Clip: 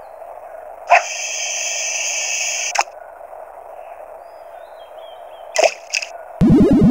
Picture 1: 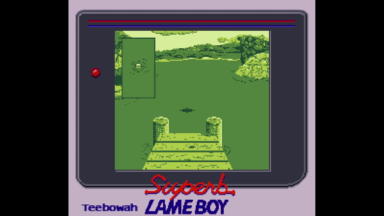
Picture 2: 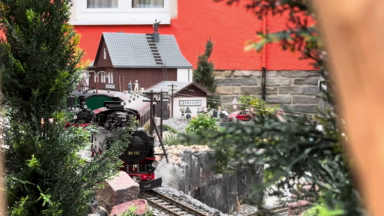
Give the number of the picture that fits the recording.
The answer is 1